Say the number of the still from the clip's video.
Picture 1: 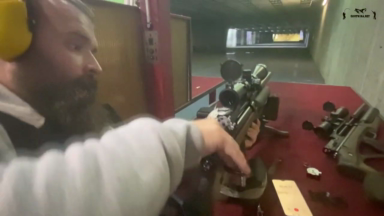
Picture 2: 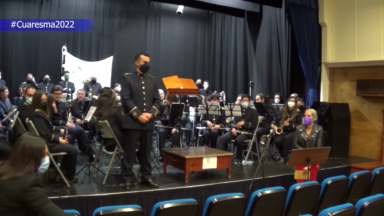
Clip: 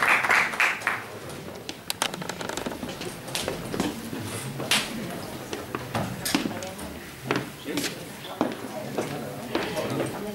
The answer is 2